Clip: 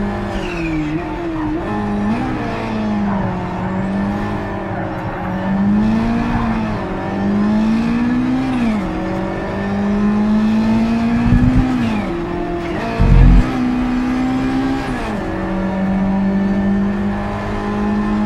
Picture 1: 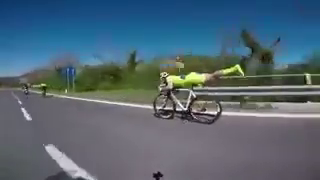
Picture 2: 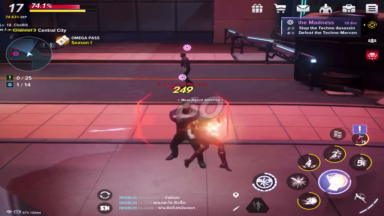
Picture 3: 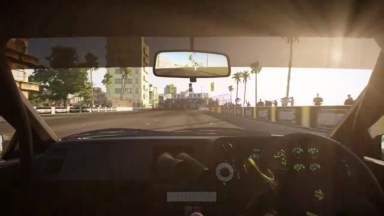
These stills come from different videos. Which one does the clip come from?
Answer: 3